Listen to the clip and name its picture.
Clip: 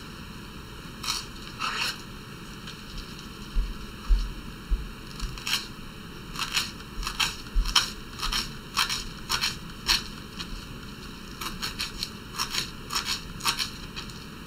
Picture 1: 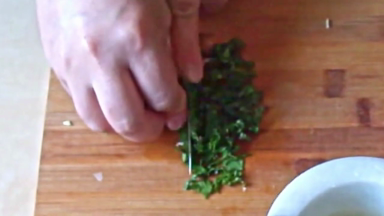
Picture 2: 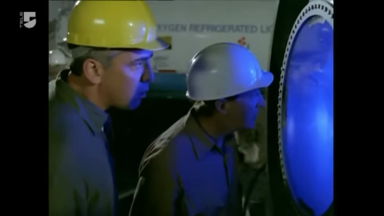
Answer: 1